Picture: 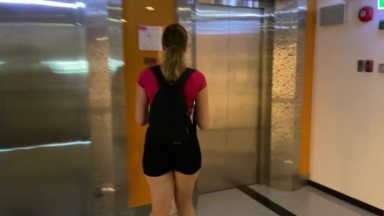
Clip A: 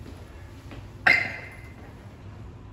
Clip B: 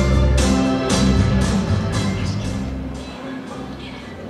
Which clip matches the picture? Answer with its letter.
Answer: A